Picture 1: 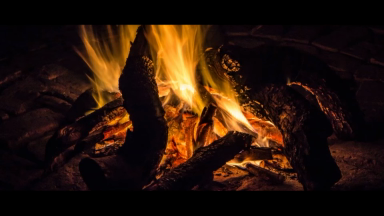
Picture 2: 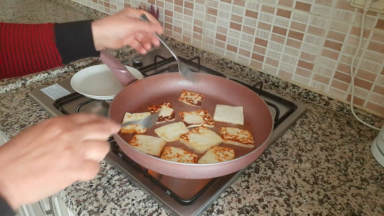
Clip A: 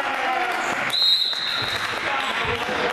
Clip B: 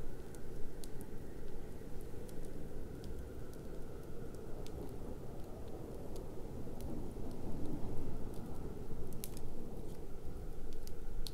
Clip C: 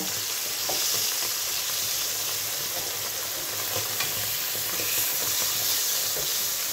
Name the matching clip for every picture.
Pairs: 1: B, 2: C